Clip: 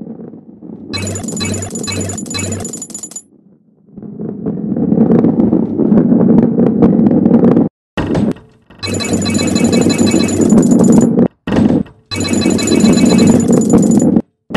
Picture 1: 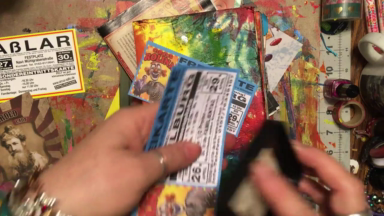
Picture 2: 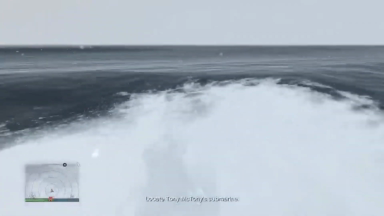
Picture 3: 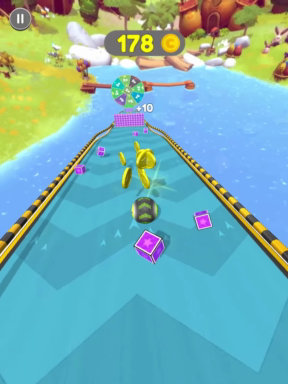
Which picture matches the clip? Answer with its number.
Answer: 3